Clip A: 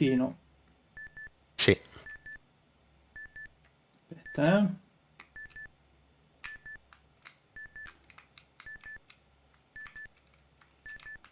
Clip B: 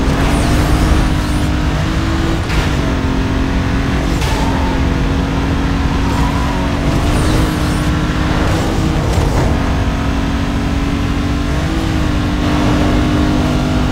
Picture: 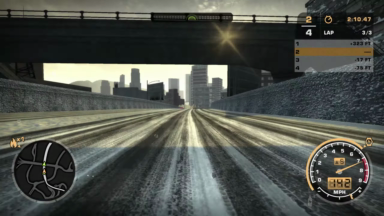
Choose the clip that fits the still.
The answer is B